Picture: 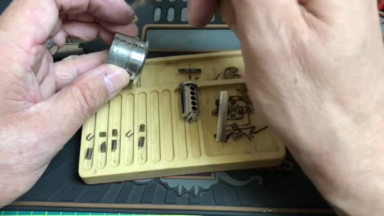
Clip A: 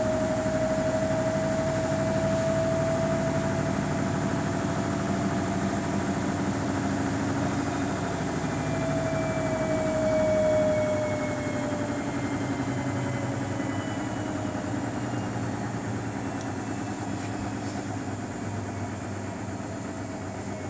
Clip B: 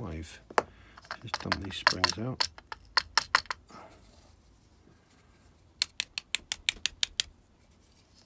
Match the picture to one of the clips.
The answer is B